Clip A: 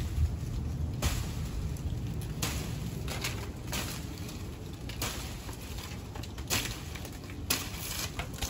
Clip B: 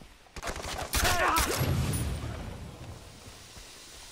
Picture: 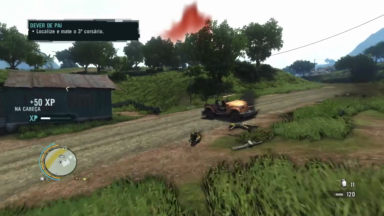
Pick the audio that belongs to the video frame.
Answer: B